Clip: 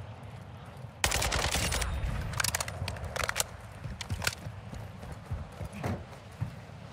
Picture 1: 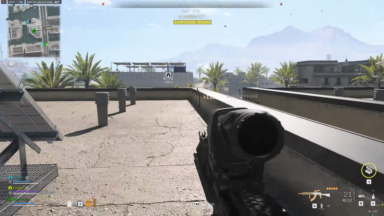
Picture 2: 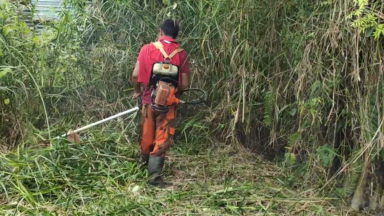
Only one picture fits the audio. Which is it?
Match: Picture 1